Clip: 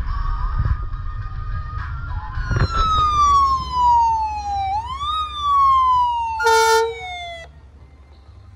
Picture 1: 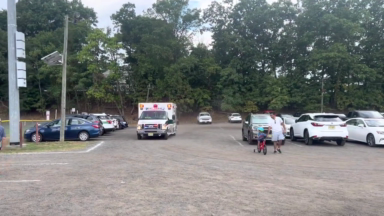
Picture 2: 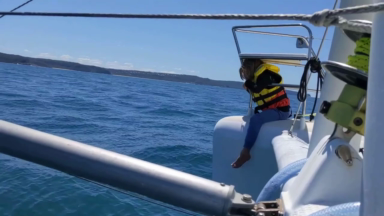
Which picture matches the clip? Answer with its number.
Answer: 1